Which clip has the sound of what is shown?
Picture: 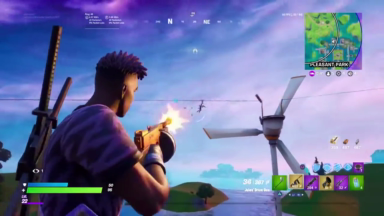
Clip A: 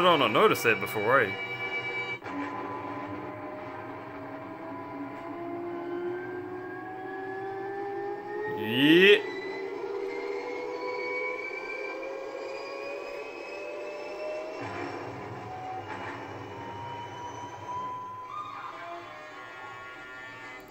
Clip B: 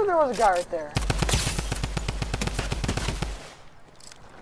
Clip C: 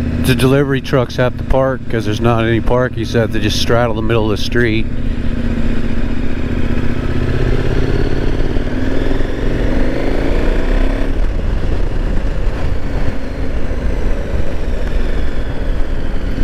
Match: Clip B